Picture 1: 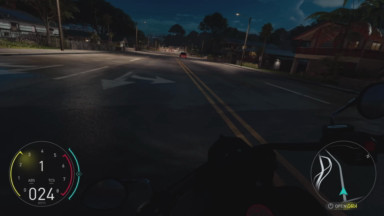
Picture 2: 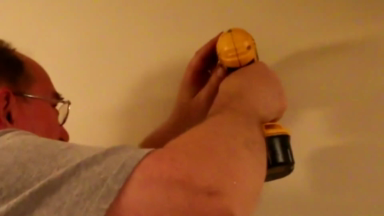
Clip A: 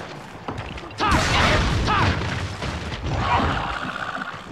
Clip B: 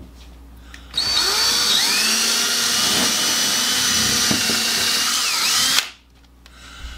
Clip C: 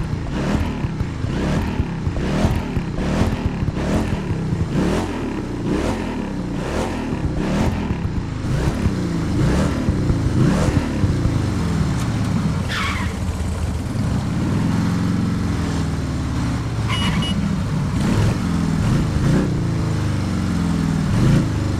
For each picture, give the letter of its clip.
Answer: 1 C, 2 B